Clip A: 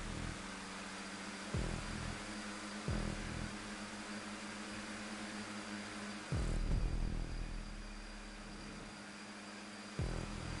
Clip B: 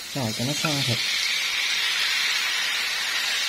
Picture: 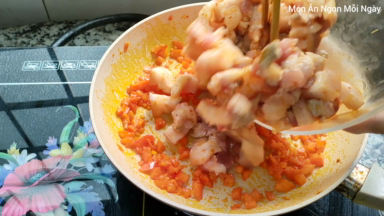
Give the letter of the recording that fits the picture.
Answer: B